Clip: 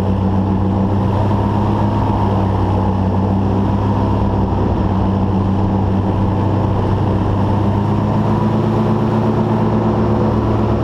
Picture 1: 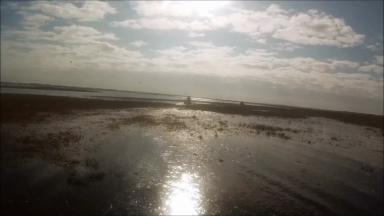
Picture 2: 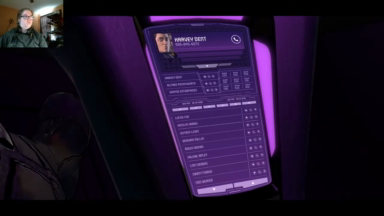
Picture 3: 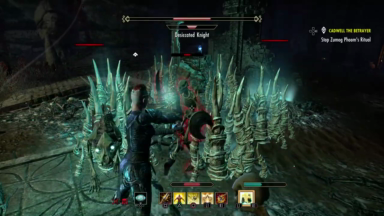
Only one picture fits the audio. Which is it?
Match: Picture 1